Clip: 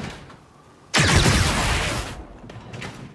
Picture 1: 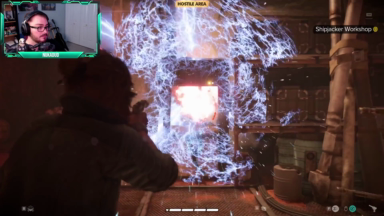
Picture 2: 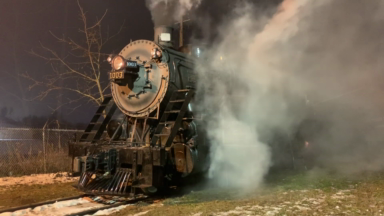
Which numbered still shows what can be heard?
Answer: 1